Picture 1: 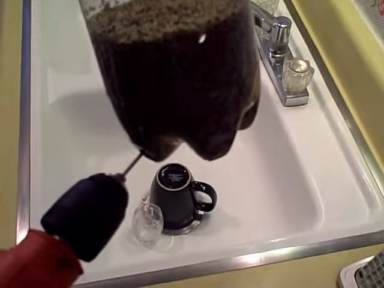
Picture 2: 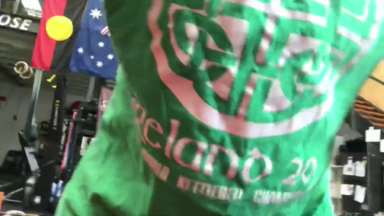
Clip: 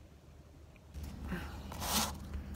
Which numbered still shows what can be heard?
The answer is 2